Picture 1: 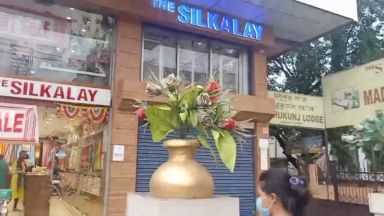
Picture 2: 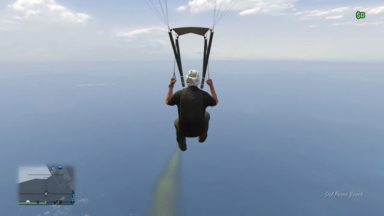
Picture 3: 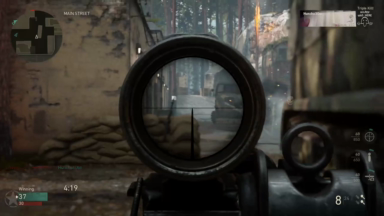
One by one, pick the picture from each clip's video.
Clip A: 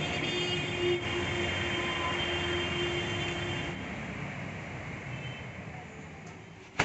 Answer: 1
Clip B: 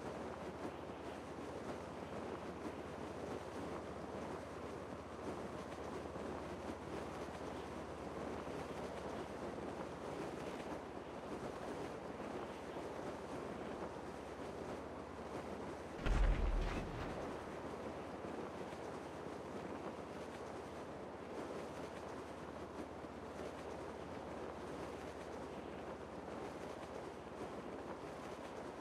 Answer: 2